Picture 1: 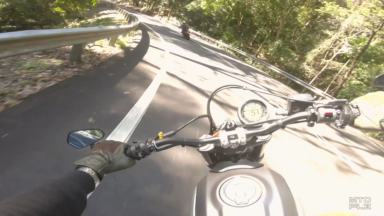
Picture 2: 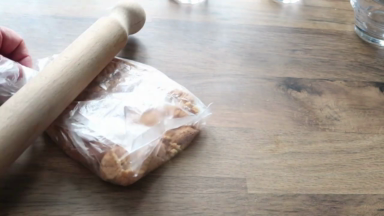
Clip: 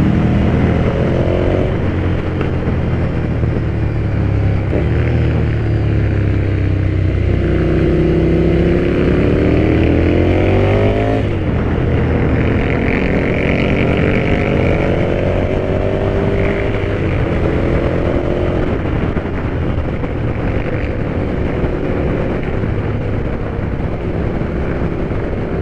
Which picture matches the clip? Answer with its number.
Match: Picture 1